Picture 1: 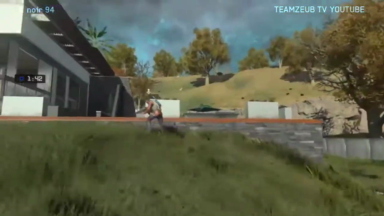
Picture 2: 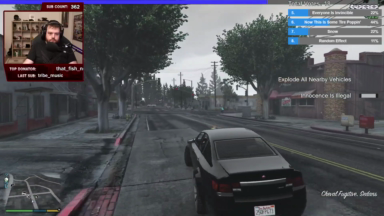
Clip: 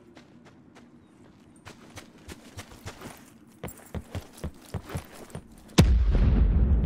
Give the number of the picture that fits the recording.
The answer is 1